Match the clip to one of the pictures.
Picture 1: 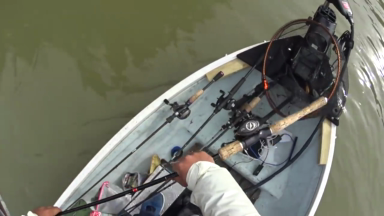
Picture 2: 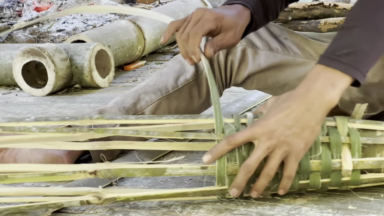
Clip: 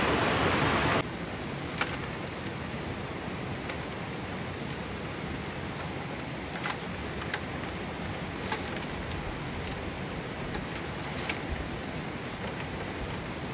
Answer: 2